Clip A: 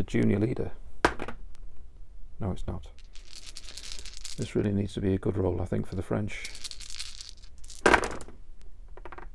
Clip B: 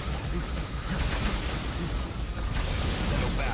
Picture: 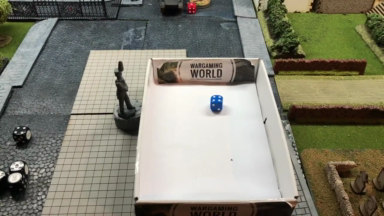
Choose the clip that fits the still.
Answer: A